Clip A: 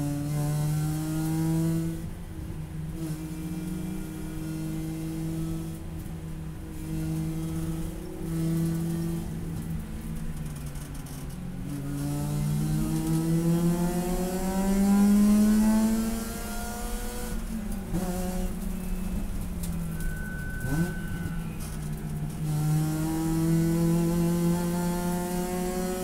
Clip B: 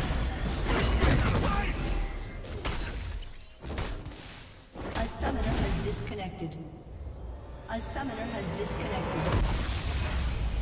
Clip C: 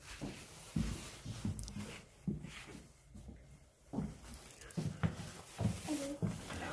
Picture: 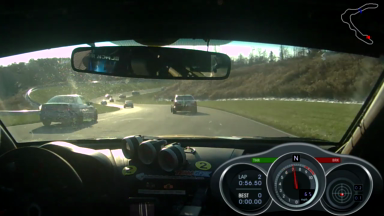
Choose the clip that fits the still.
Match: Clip A